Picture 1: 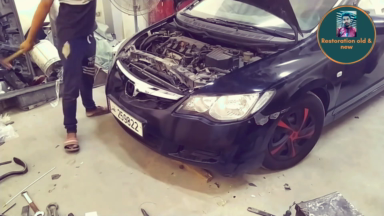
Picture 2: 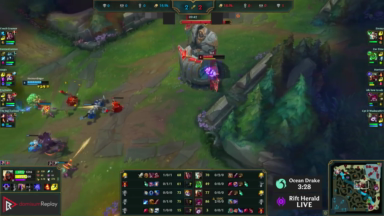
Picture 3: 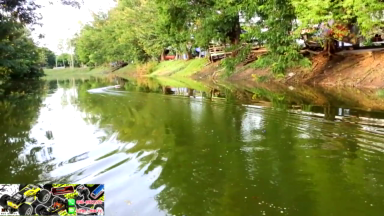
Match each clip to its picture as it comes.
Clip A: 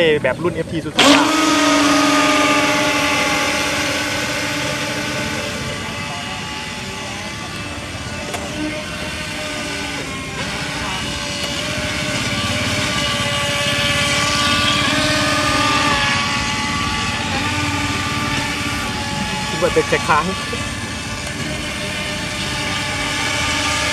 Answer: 3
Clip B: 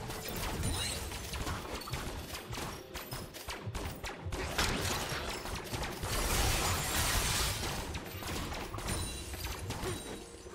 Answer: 2